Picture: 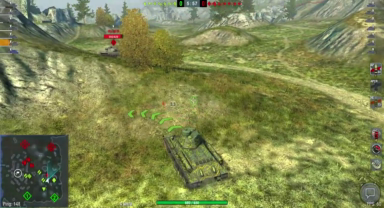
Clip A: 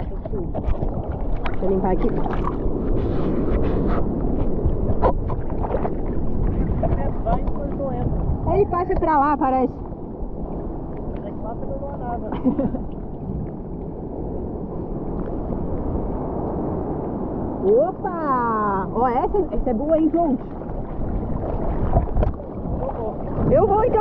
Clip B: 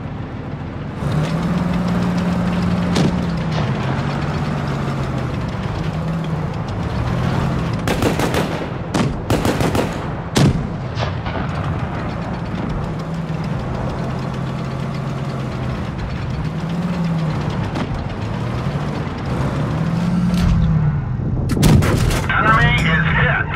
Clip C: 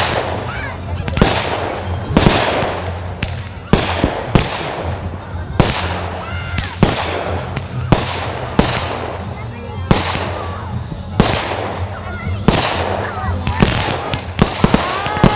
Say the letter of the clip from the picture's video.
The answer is B